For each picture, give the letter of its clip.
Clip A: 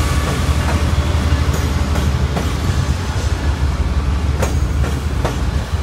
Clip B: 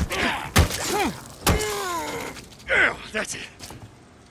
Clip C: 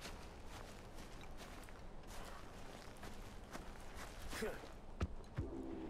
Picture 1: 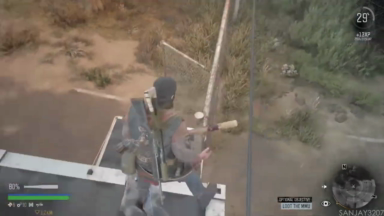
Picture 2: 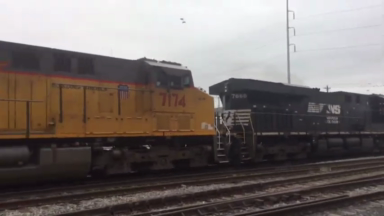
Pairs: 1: B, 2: A